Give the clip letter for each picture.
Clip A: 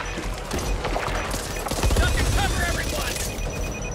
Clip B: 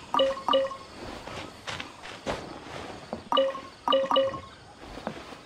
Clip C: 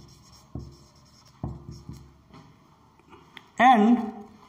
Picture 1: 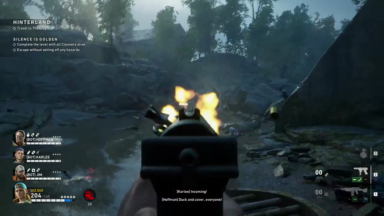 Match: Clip A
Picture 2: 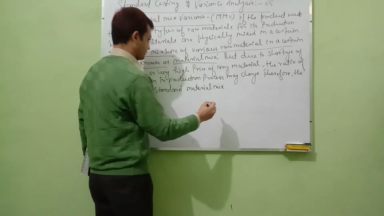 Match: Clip C